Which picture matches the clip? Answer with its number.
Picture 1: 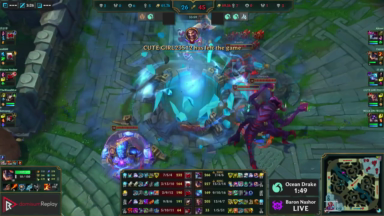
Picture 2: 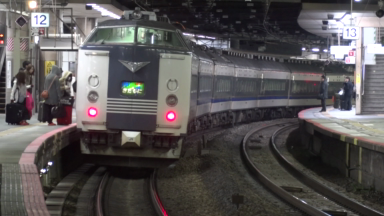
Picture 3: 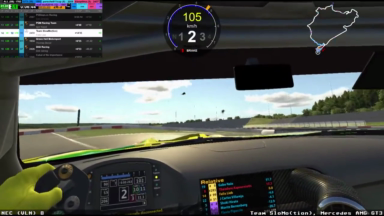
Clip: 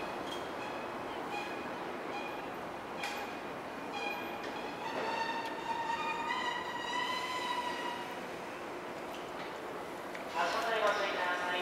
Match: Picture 2